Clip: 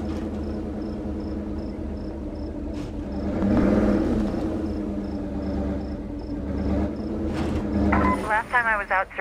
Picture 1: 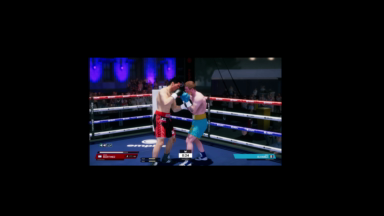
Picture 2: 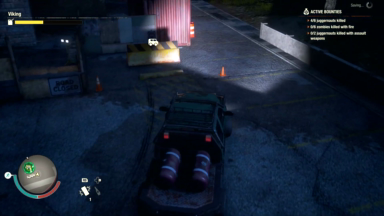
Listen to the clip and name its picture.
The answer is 2